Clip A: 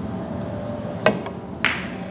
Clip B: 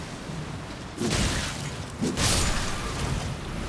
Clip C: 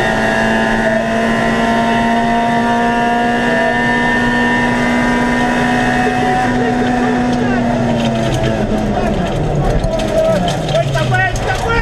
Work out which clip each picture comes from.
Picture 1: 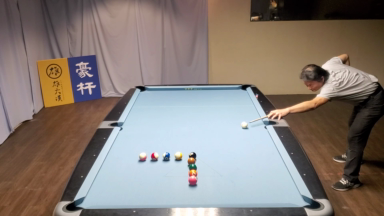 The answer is A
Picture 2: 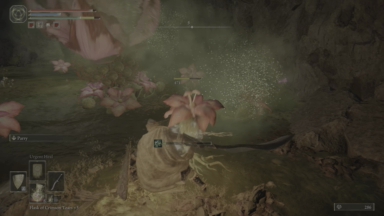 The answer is B